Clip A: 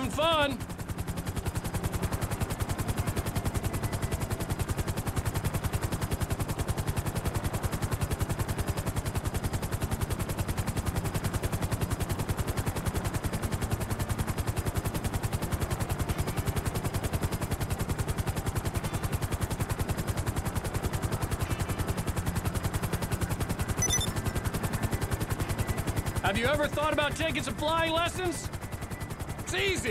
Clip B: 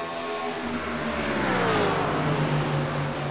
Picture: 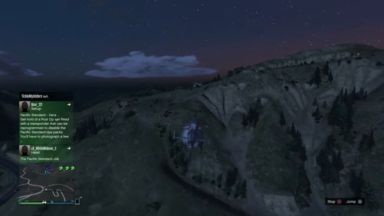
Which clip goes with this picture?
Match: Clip A